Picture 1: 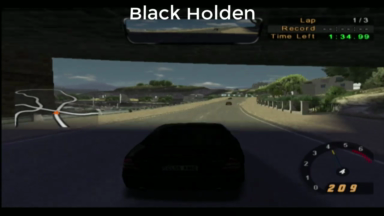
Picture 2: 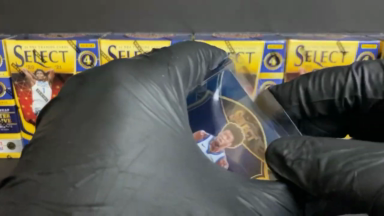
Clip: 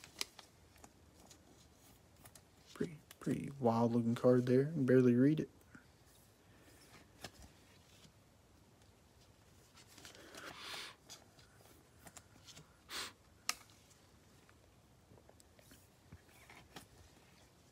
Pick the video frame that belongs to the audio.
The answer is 2